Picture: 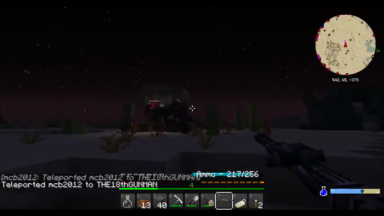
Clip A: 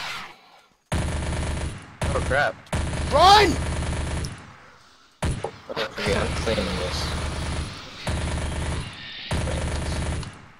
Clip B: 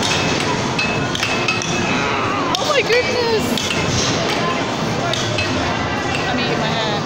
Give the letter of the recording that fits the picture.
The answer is A